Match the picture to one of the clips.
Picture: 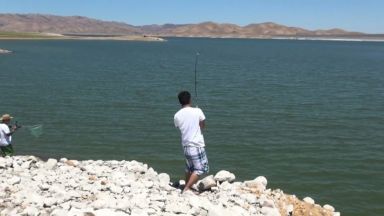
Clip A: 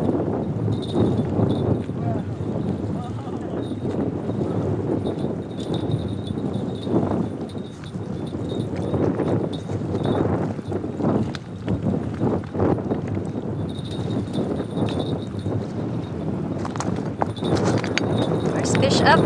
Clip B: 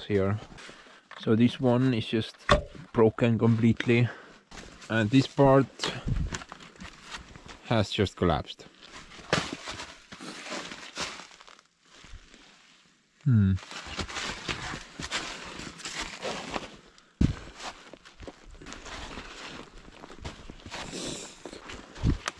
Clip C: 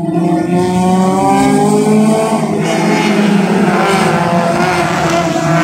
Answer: A